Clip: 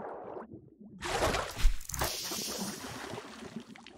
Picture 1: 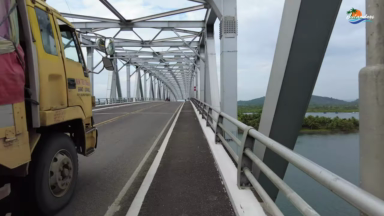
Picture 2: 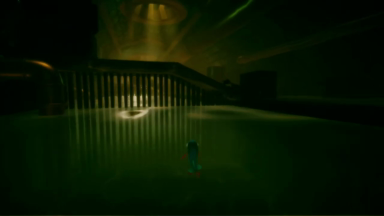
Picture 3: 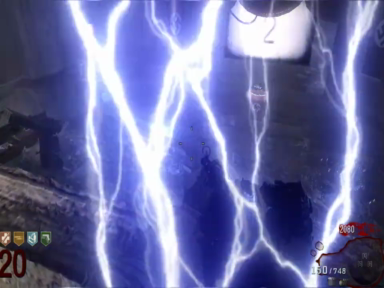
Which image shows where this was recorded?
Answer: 2